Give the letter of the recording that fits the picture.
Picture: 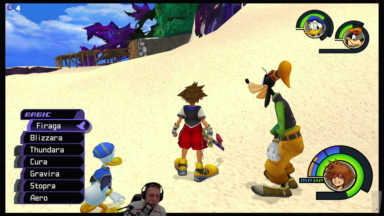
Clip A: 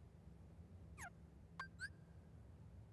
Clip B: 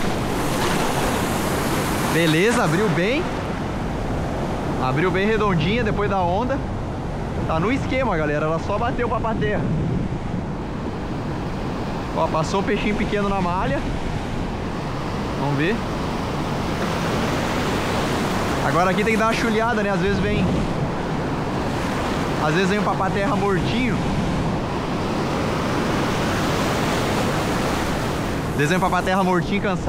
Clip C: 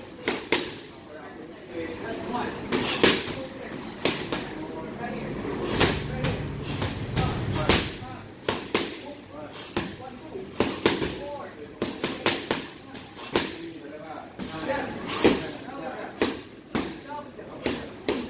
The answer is A